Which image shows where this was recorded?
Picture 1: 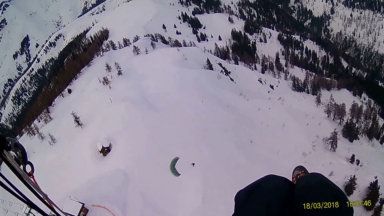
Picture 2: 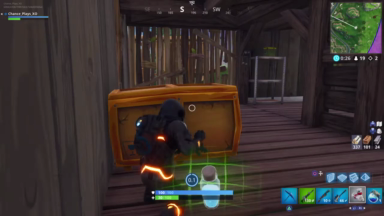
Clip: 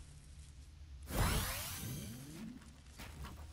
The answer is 2